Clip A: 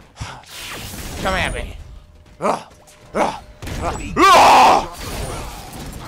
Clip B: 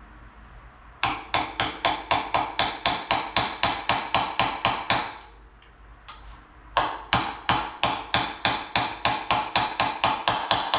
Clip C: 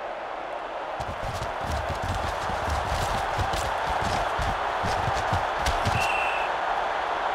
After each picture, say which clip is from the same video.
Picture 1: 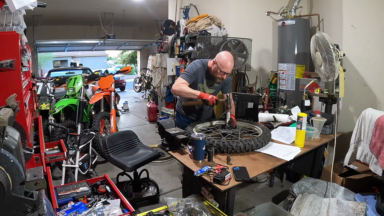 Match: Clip B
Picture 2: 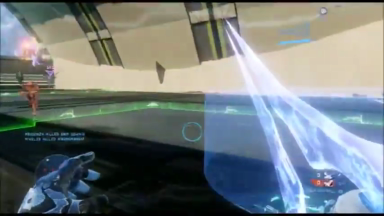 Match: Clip A